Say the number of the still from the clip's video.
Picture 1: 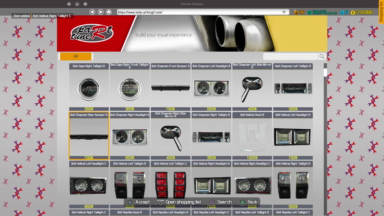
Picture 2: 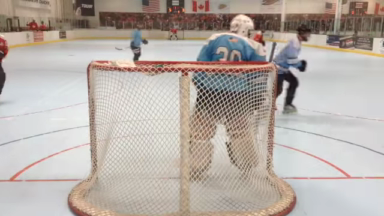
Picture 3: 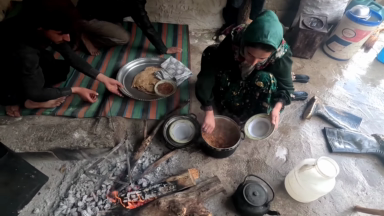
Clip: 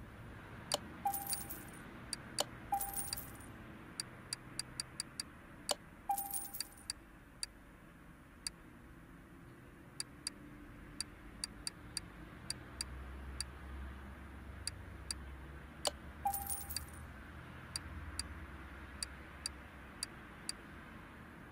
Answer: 1